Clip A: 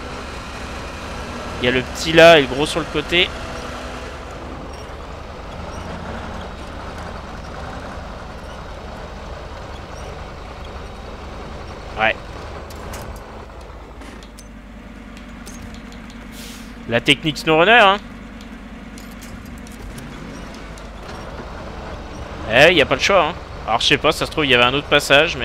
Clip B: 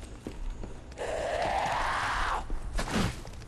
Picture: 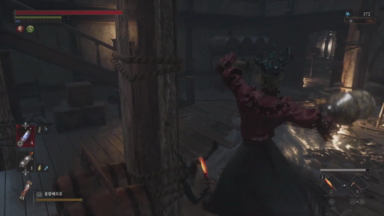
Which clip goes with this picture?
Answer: B